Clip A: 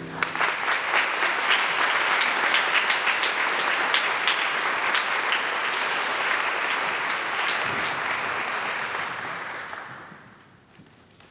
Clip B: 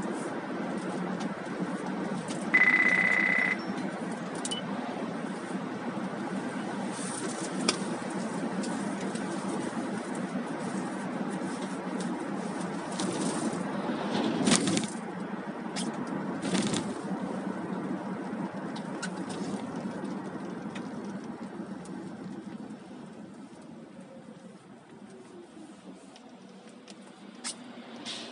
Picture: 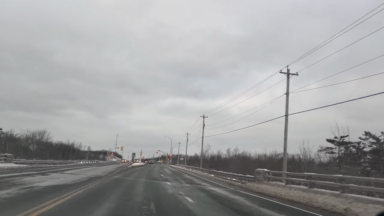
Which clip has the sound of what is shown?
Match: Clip B